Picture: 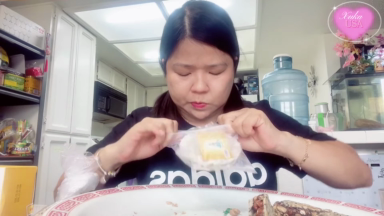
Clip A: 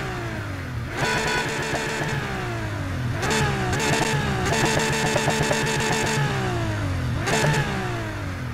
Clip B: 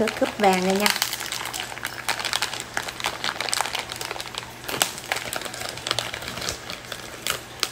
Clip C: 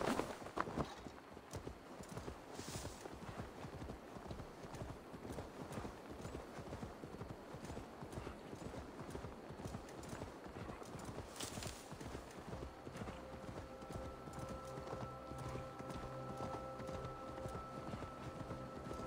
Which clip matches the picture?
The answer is B